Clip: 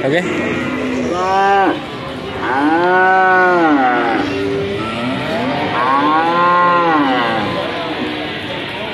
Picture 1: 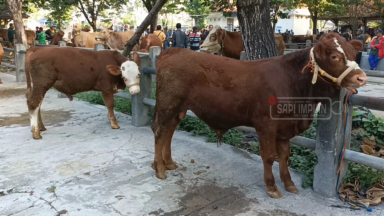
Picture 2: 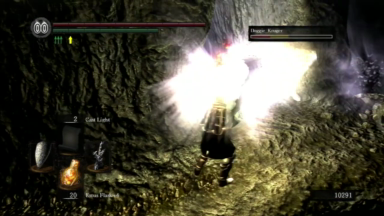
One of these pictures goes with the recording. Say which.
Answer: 1